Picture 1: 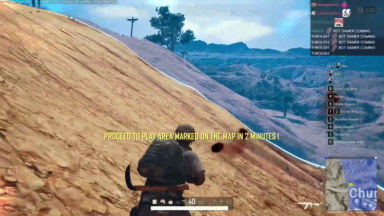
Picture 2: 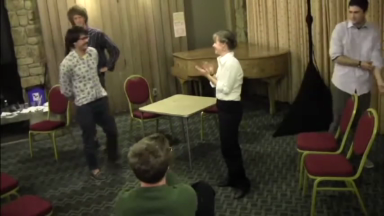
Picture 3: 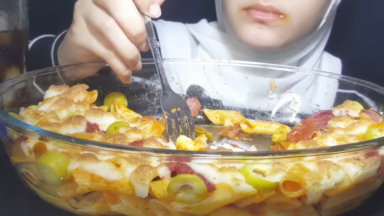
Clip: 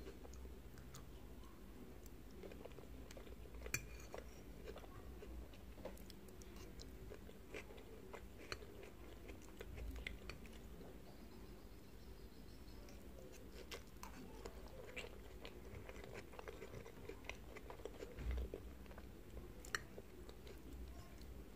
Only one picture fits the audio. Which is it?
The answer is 3